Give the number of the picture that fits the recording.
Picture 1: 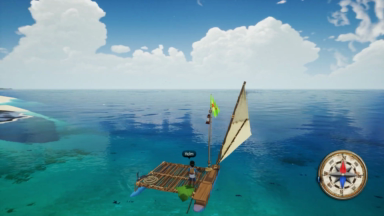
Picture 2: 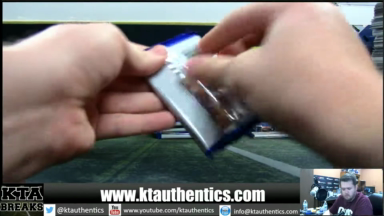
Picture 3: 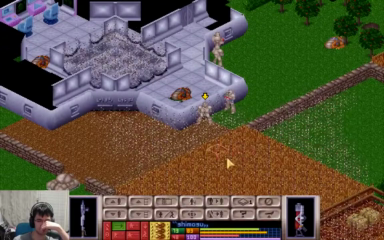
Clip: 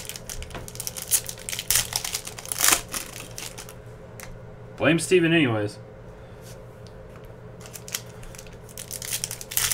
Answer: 2